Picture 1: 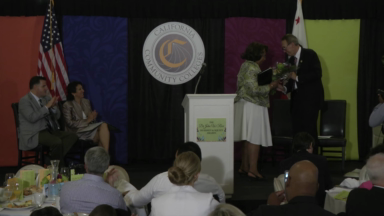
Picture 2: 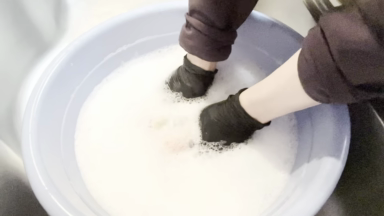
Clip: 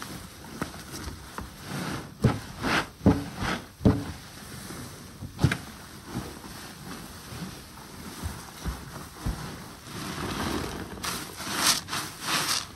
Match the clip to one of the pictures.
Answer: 2